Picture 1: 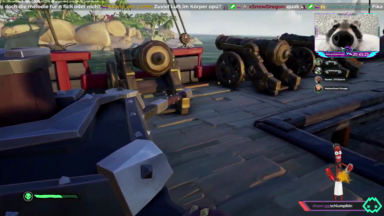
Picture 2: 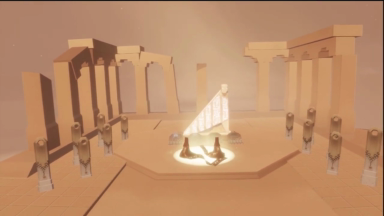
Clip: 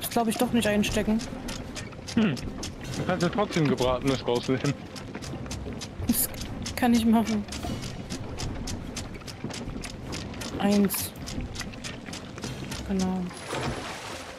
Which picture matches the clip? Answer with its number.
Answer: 1